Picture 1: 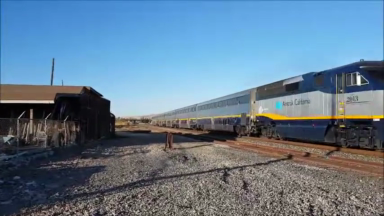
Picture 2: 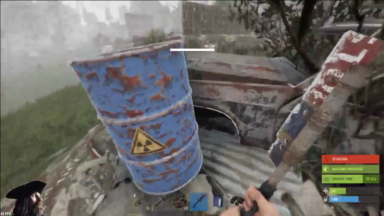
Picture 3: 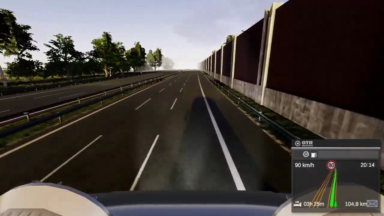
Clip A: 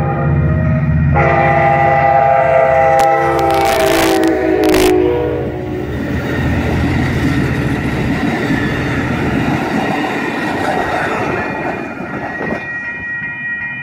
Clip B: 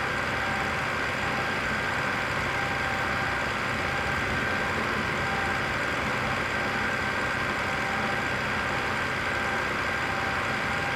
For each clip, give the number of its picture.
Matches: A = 1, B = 3